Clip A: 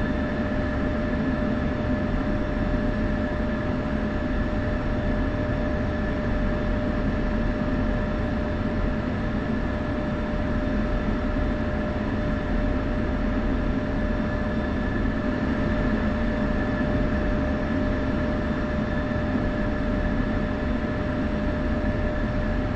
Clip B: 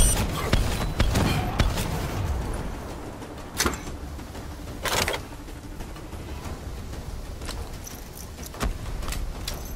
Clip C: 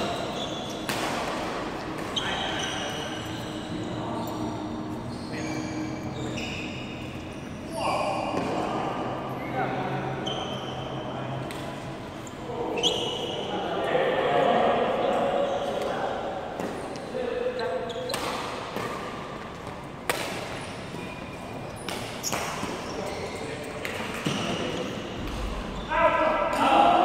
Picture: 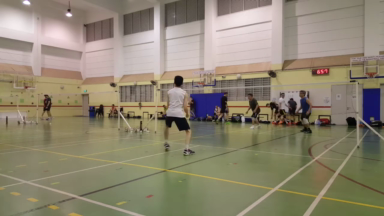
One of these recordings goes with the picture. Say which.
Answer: C